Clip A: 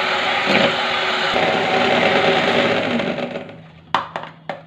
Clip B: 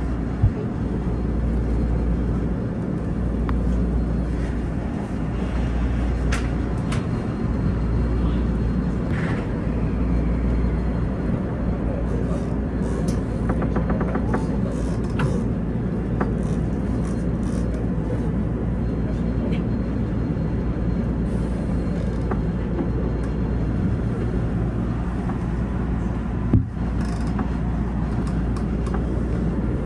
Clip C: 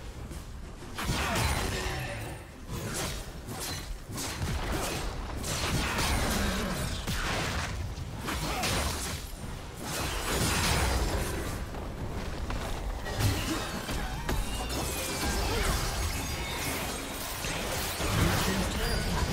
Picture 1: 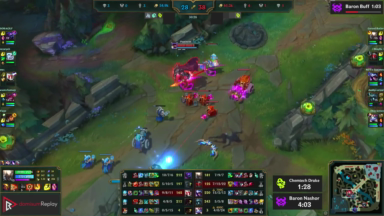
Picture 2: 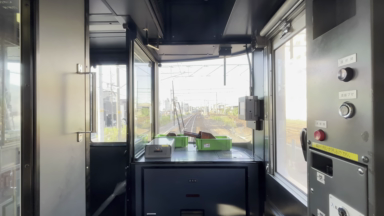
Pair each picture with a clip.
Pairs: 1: C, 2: B